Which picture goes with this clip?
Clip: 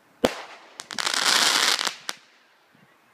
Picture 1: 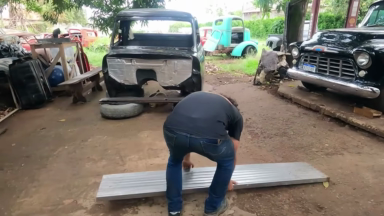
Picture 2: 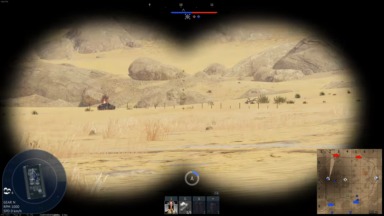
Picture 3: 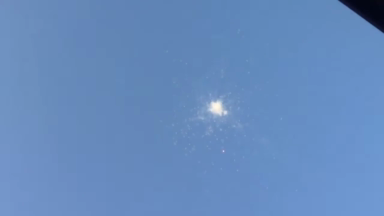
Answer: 3